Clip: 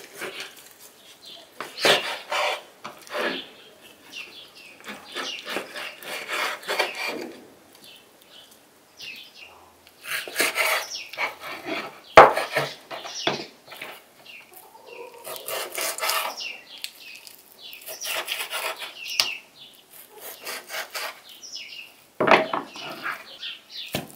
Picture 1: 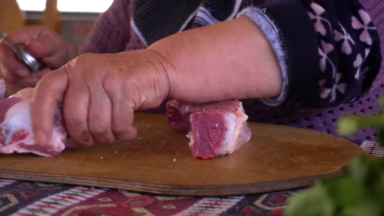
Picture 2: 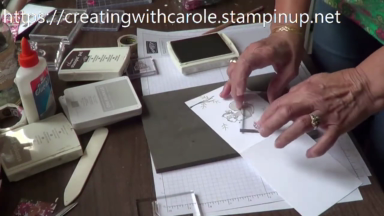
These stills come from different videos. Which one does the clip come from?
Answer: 1